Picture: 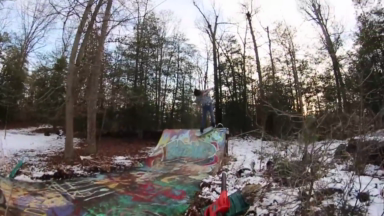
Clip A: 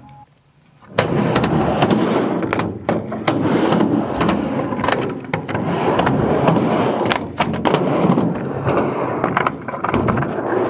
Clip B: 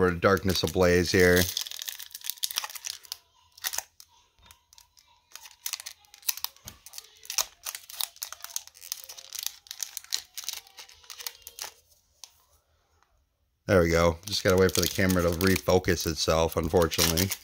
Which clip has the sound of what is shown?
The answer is A